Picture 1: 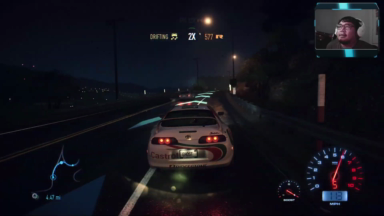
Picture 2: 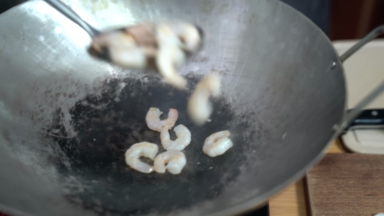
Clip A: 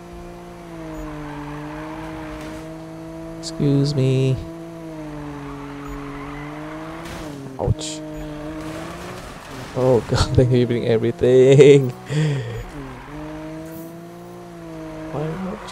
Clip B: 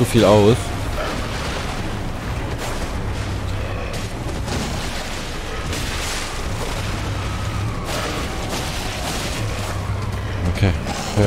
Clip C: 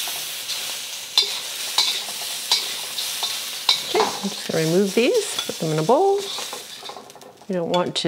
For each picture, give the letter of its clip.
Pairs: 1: A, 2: C